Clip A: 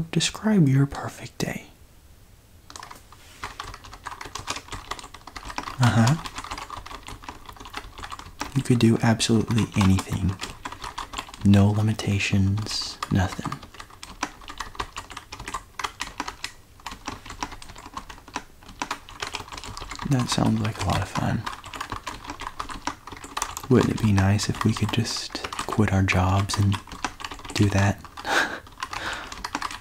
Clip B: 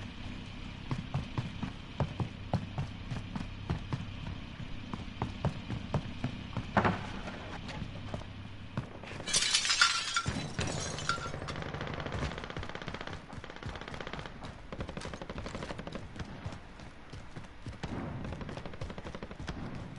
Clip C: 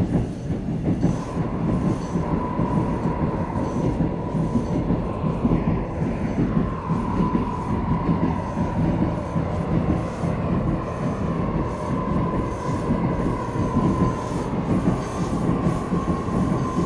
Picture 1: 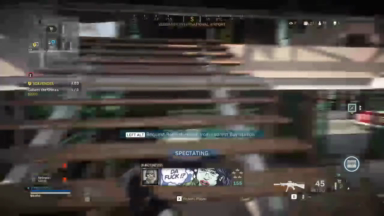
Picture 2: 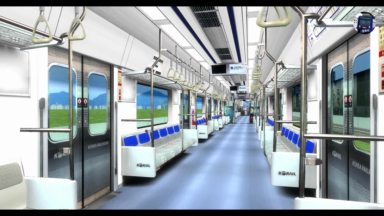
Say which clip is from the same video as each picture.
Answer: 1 B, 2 C